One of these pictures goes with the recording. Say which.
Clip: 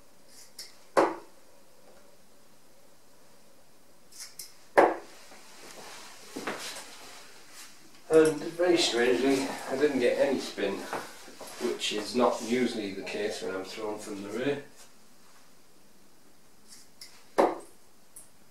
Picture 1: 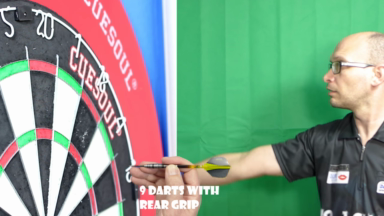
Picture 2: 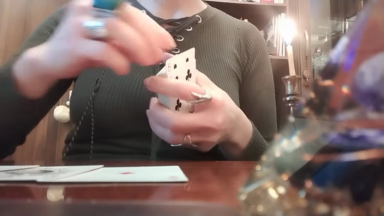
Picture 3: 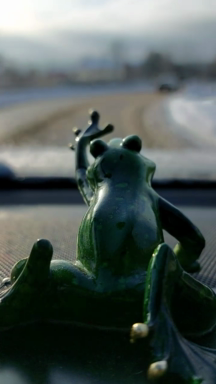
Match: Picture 1